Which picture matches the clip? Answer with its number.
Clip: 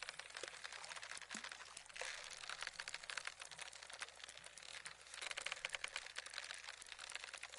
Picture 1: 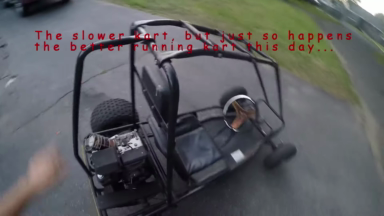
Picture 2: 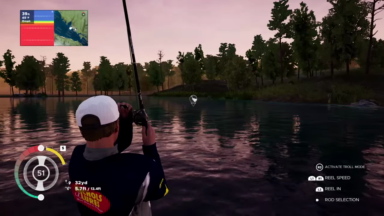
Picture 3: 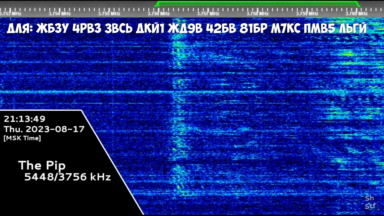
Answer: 2